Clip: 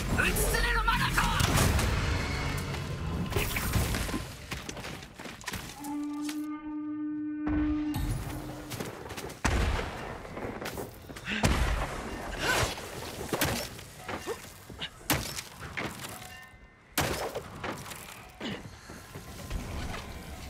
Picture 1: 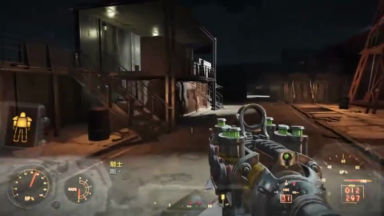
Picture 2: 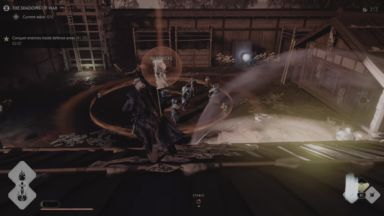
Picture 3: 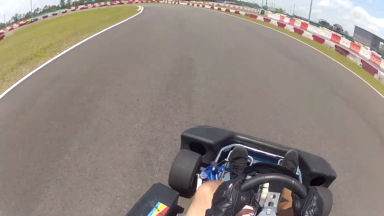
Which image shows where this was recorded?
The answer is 2